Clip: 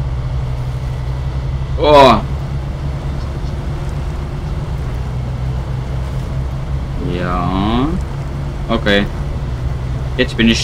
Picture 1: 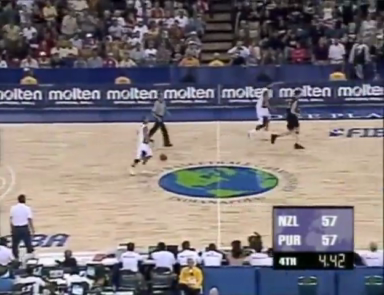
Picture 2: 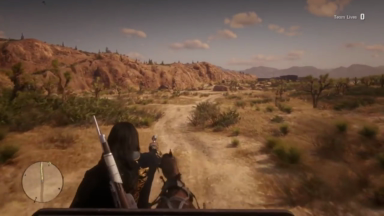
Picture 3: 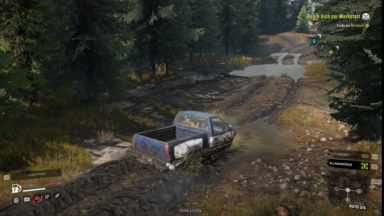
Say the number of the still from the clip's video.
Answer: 3